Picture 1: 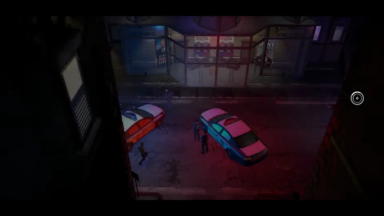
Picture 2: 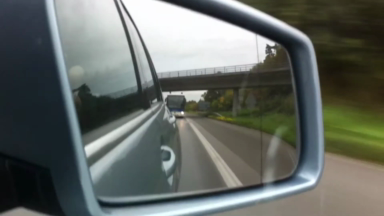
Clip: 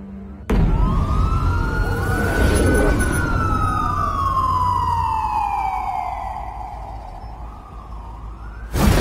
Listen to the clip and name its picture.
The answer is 1